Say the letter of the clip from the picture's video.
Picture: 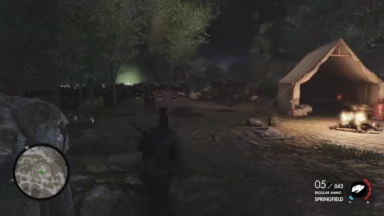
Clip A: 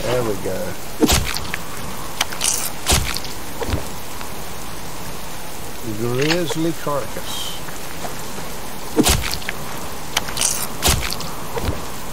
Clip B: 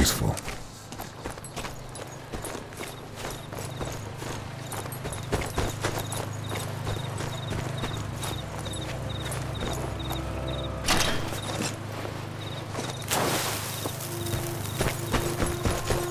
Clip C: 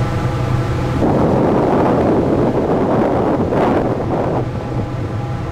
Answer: B